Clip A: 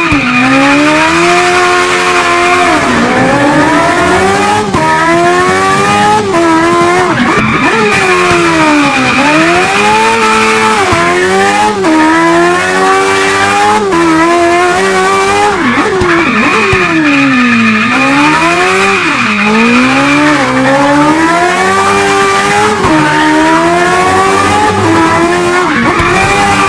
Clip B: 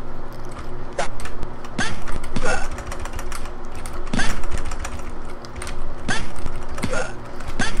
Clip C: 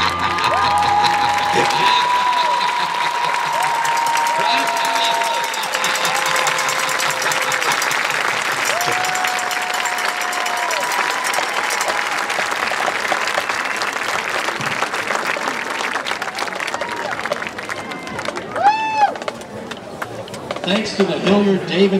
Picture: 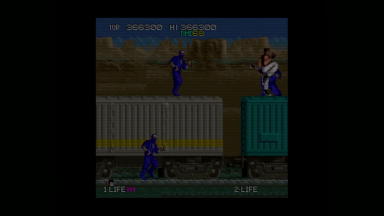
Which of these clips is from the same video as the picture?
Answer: B